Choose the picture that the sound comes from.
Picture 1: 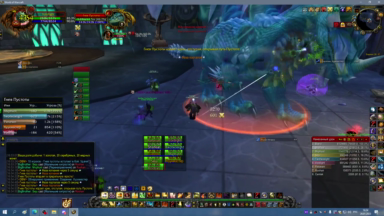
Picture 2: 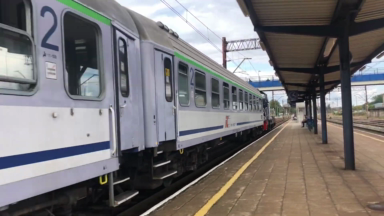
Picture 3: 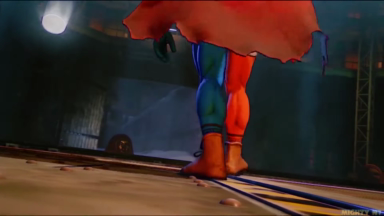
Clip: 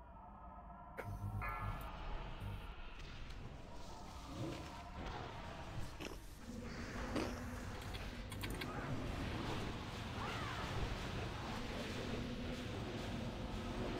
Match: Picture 1